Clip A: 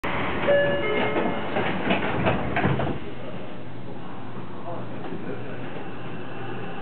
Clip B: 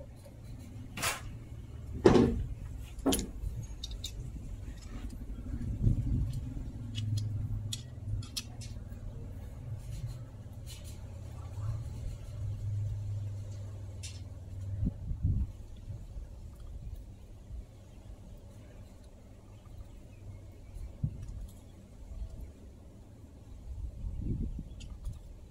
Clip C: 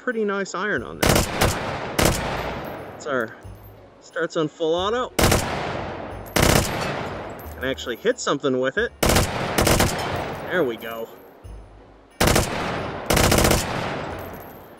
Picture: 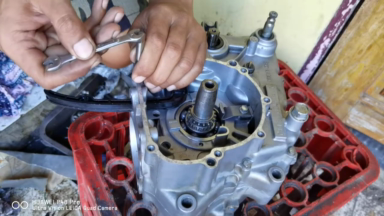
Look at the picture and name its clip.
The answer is B